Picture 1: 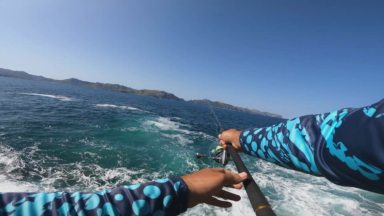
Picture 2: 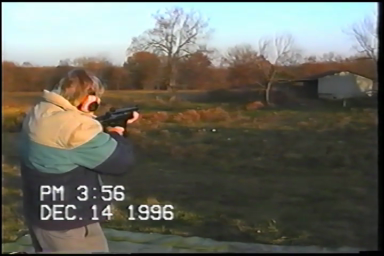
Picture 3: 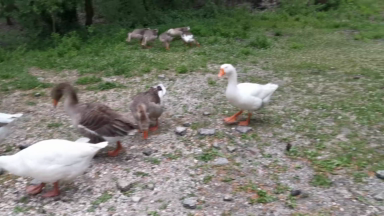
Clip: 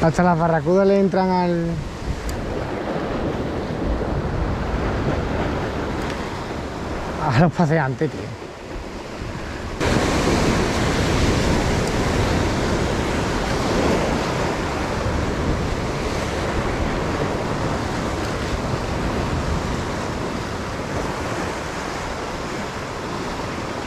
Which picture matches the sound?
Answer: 1